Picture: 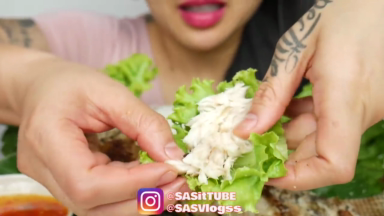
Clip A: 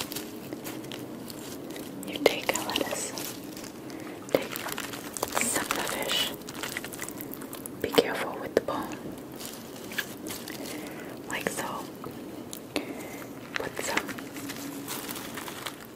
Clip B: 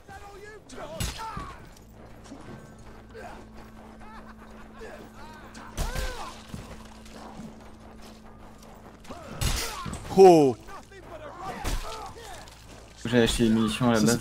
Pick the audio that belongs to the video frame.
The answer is A